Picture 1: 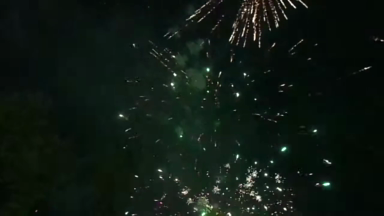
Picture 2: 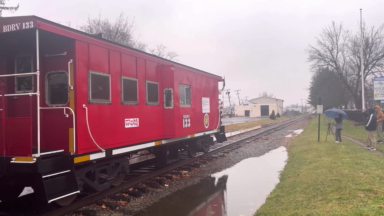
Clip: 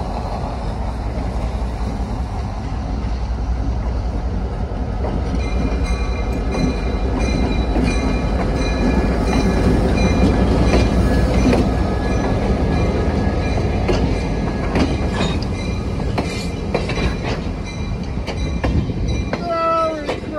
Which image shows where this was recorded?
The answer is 2